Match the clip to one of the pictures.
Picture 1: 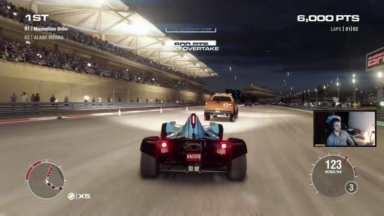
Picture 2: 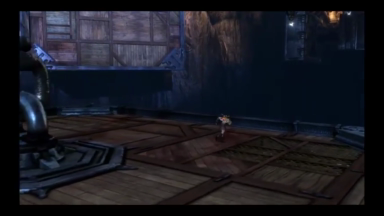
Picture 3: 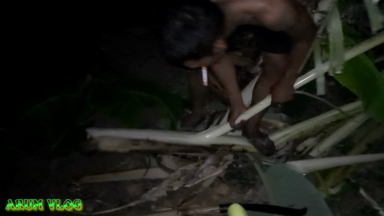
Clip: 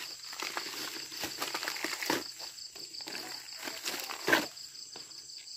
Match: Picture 3